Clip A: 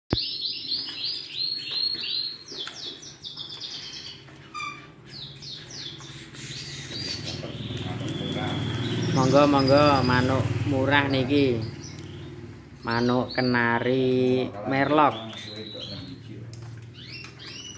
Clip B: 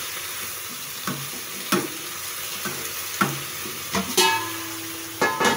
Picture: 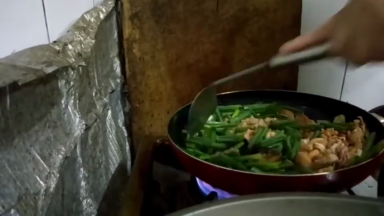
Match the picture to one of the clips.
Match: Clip B